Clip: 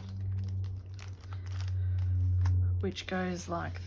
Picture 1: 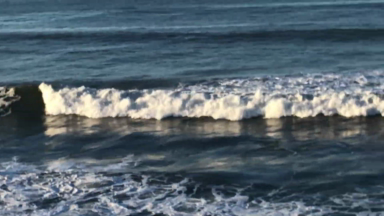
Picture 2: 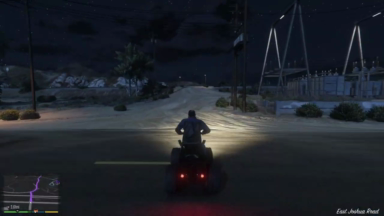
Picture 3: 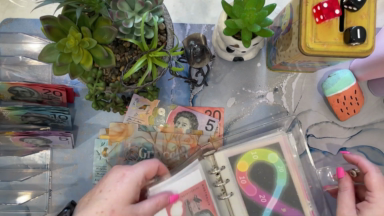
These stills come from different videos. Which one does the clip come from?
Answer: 3